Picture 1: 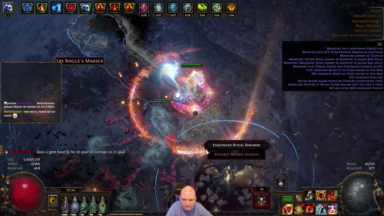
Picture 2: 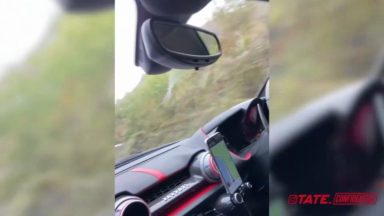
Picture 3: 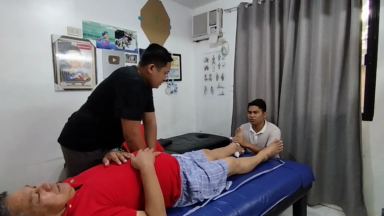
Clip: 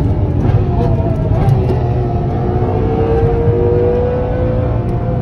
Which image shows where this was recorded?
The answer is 2